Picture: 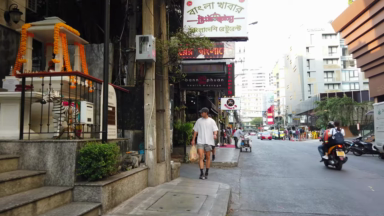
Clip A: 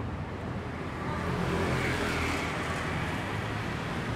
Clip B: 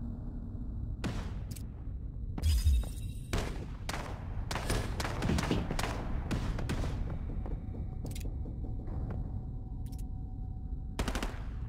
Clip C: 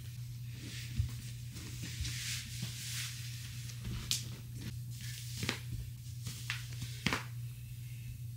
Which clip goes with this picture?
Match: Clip A